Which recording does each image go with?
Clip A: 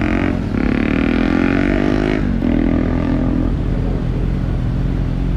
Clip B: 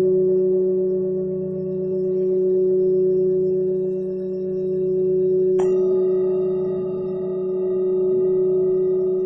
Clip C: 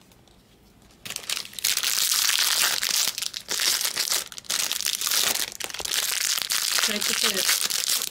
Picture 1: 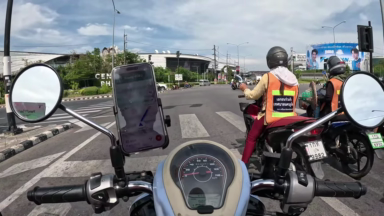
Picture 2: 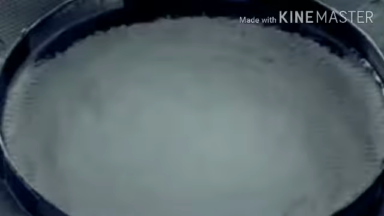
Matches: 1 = A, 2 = B